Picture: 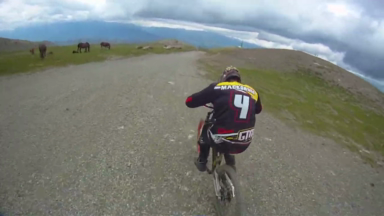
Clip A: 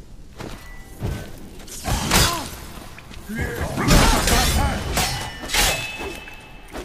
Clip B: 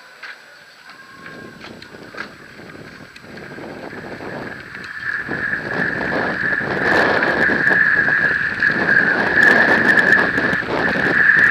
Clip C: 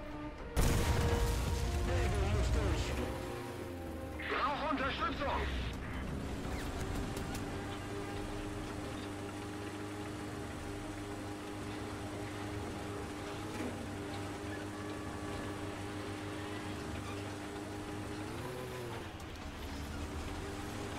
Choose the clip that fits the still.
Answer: B